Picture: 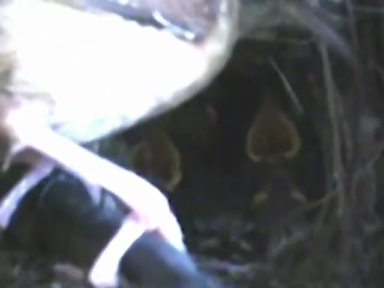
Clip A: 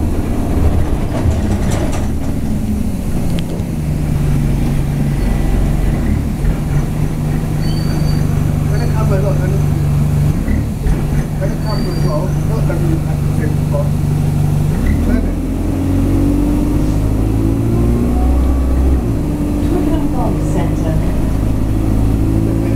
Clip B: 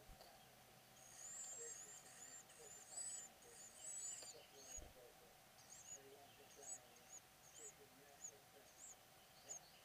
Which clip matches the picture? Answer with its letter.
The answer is B